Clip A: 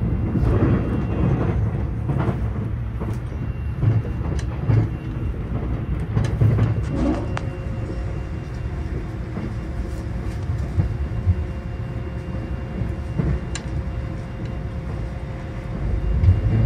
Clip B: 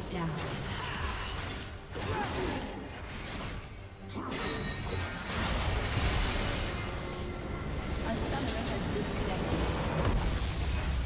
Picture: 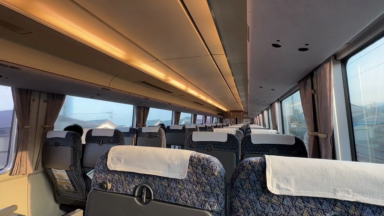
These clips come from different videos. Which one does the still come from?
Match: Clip A